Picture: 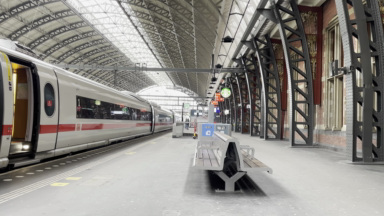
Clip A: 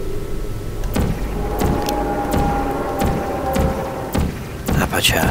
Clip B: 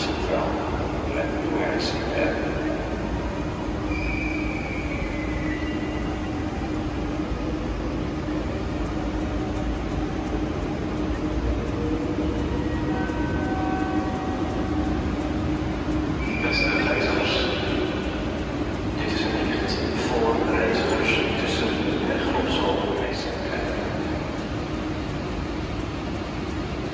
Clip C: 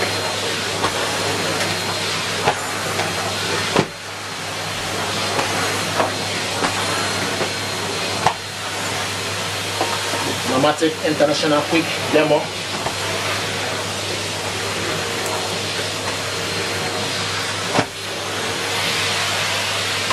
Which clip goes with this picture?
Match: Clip B